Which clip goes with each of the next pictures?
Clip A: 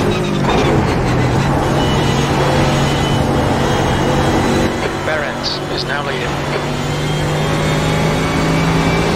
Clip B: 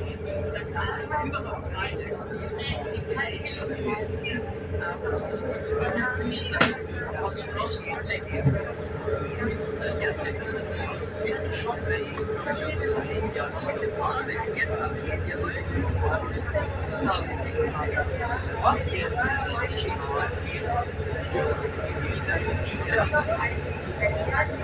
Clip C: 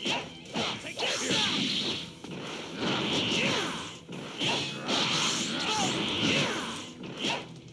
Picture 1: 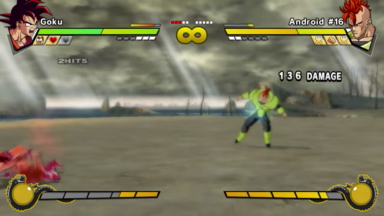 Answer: C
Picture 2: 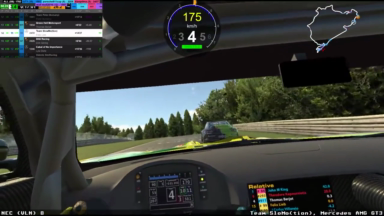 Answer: A